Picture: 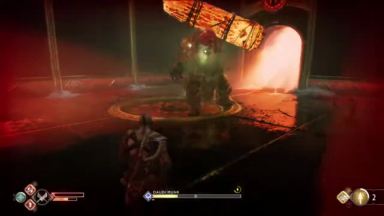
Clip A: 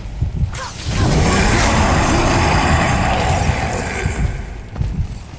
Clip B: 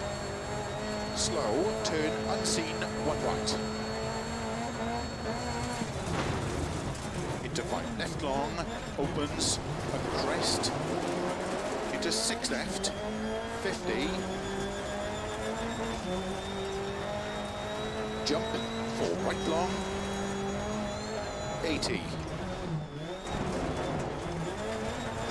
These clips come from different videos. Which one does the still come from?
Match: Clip A